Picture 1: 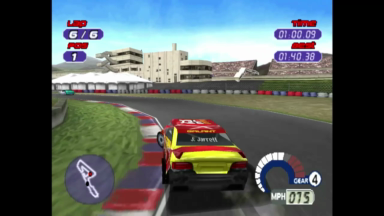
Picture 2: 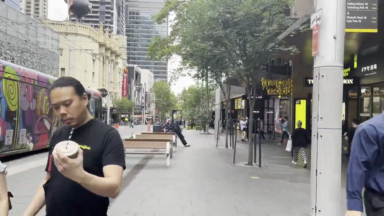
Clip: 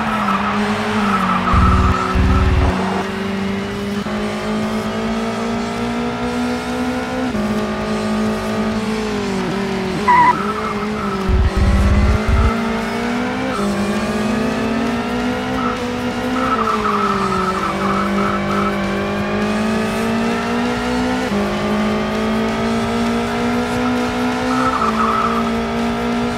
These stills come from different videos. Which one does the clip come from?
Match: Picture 1